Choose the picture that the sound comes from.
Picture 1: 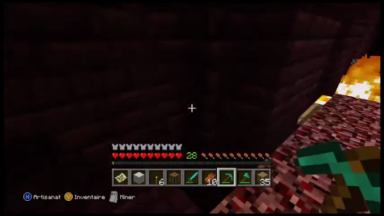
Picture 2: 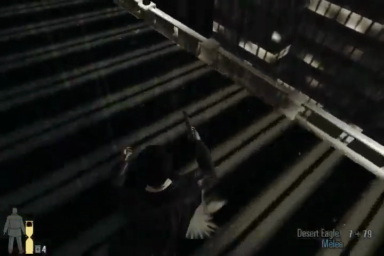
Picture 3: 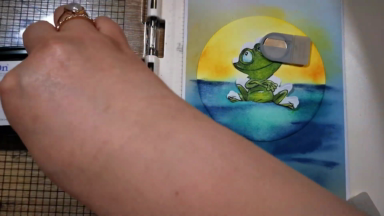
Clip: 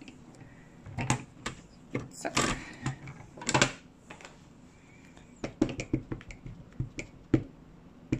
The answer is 3